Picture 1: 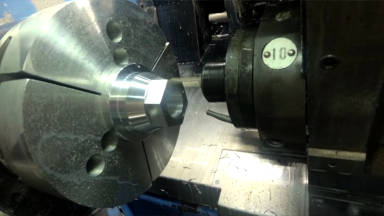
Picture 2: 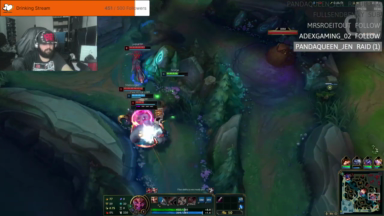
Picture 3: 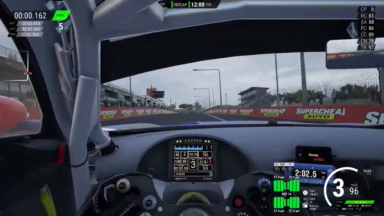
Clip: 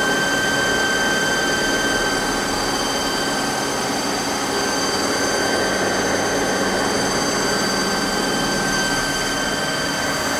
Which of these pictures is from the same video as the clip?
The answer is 1